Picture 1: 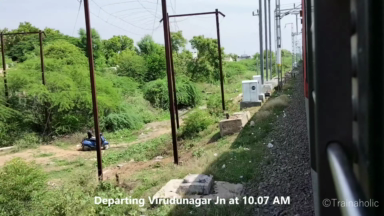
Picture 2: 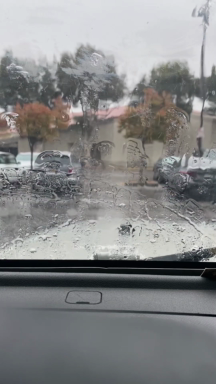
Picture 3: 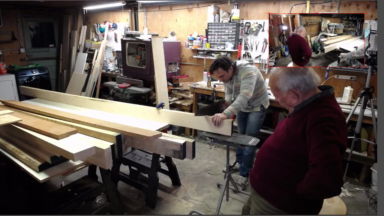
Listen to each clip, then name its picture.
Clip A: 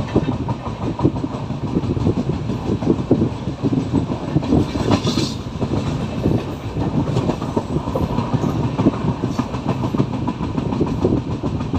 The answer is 1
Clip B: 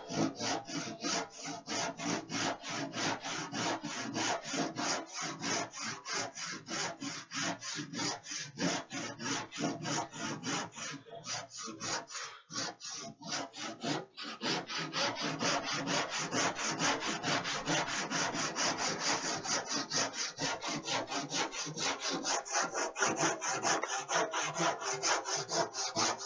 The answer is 3